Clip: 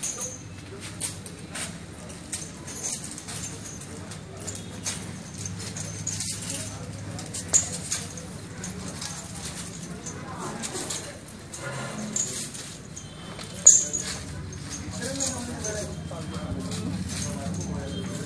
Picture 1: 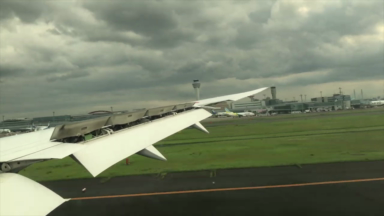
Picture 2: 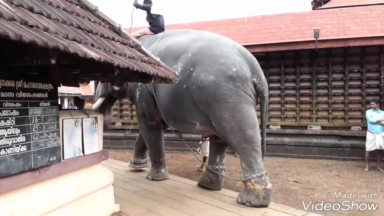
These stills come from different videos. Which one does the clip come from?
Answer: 2